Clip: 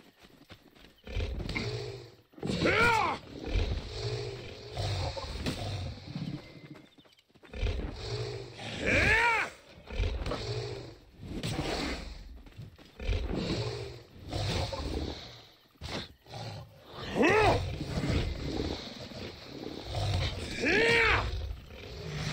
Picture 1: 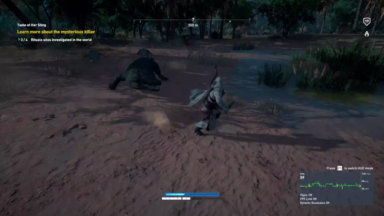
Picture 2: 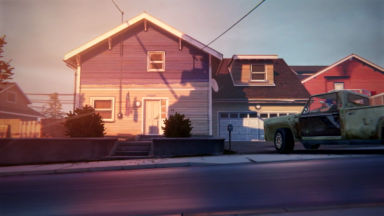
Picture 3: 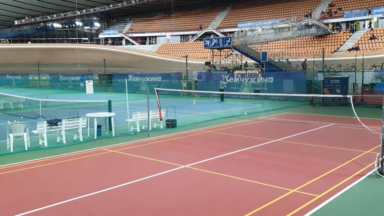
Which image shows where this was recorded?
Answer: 1